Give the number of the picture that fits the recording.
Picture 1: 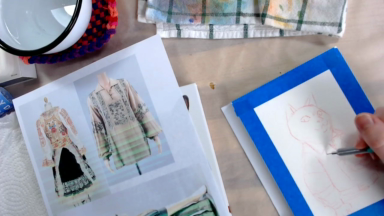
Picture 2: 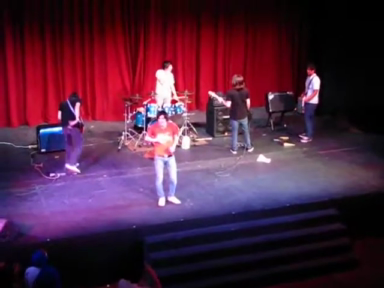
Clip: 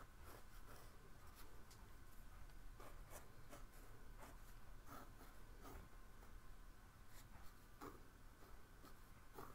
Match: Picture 1